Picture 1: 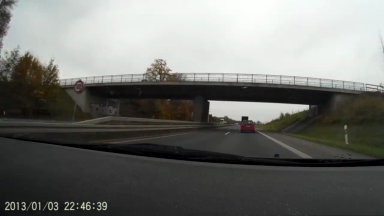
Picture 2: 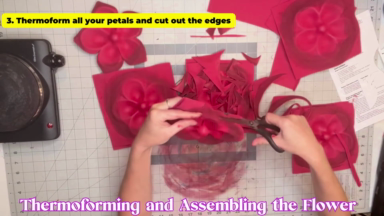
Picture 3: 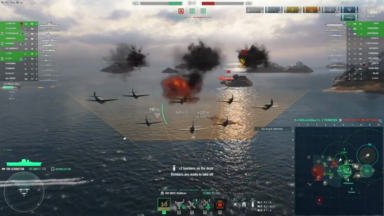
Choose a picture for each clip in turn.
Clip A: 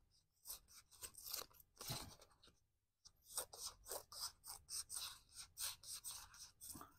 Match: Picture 2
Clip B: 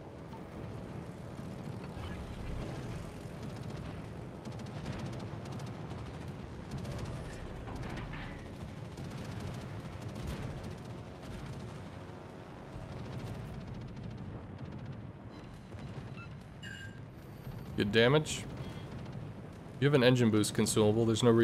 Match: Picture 3